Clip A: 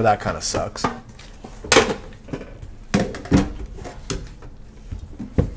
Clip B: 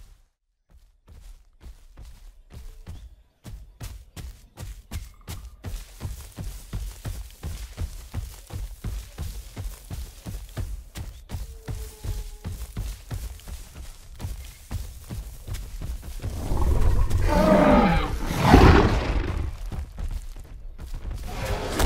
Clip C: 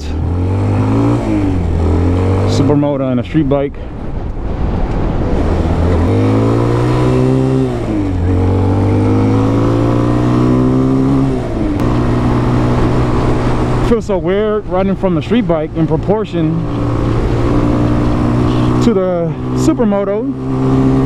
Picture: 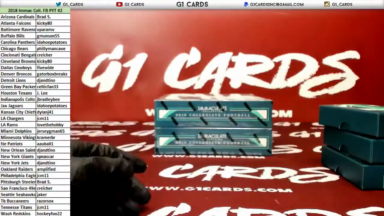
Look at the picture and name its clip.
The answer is A